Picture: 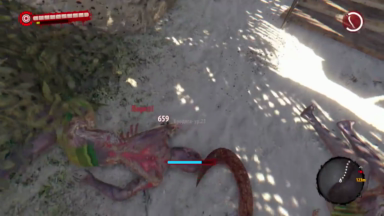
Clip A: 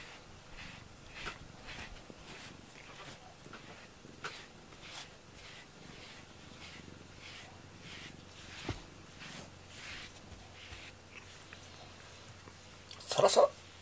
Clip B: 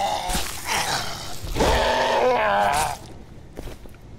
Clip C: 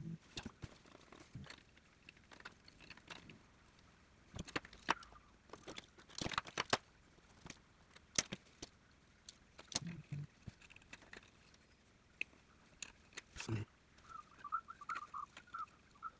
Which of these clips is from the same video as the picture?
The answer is B